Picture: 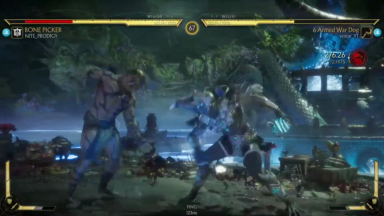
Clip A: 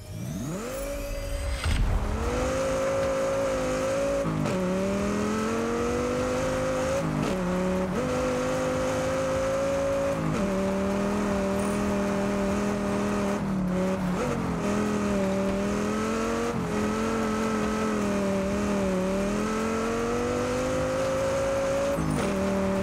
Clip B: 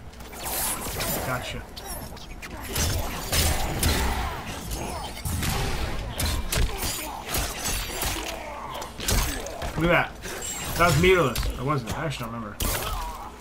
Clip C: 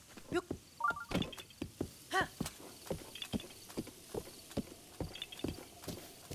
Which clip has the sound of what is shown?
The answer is B